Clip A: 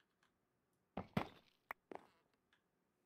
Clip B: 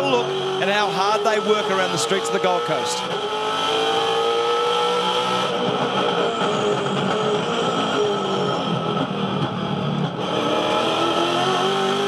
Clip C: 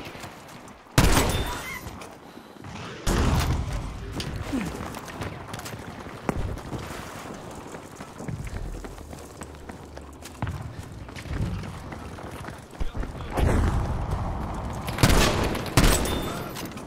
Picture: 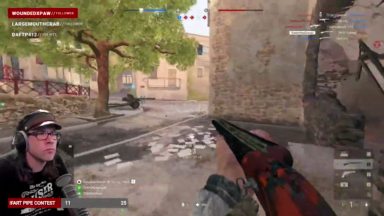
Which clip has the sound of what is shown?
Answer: C